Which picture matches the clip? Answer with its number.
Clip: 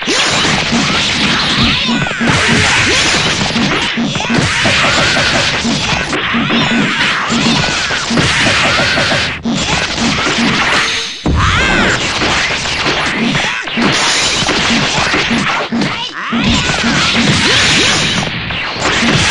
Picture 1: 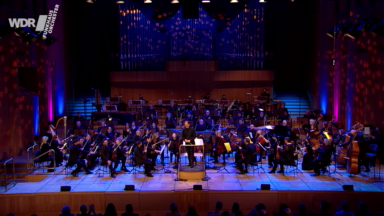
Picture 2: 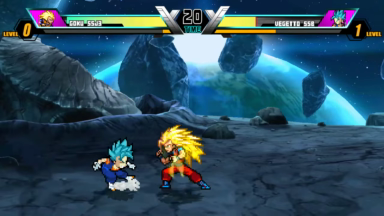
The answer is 2